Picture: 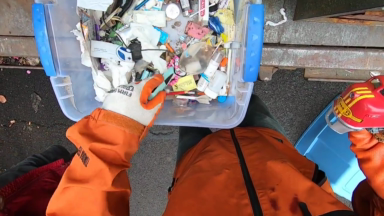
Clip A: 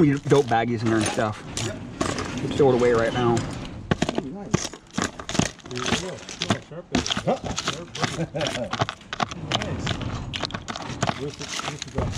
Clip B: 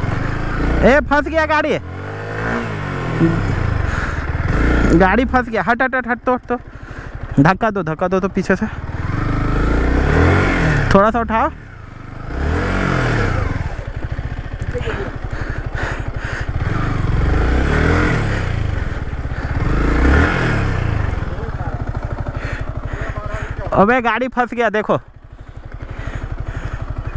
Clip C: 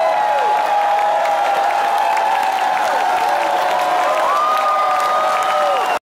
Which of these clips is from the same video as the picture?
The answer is A